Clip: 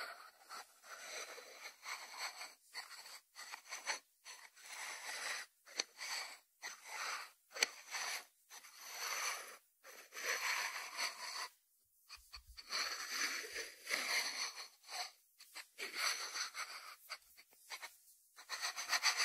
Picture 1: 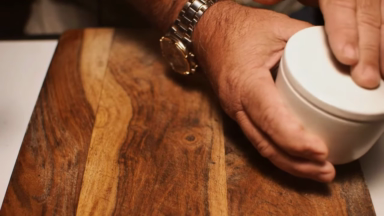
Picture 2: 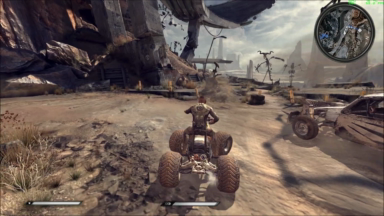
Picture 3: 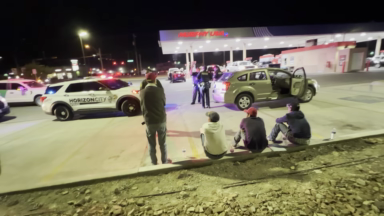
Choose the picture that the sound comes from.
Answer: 1